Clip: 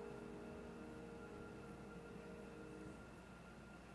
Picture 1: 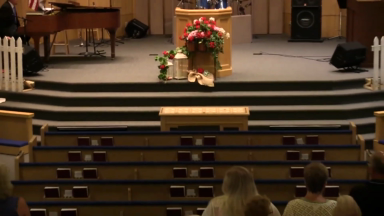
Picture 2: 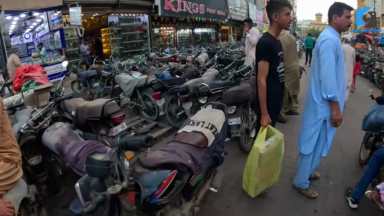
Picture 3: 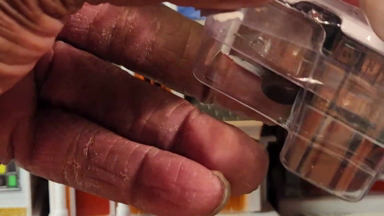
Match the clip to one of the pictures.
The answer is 1